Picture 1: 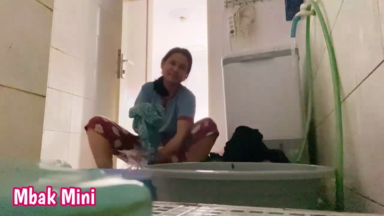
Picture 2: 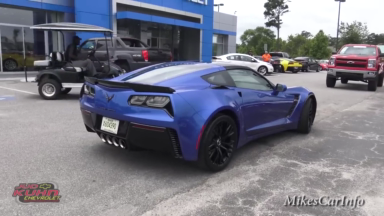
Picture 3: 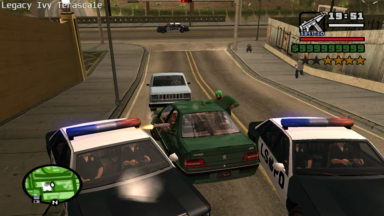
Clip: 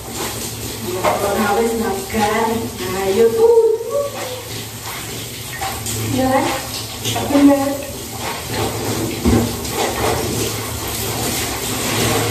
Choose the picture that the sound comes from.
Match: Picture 1